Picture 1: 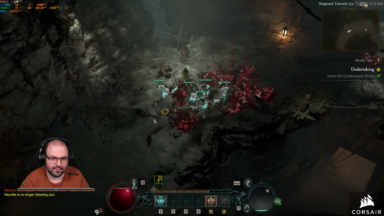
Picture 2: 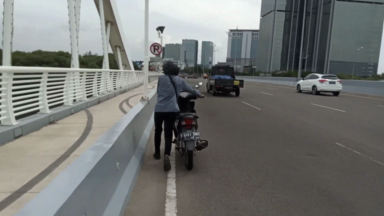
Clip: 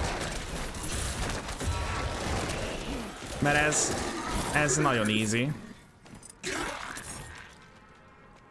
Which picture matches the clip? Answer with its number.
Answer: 1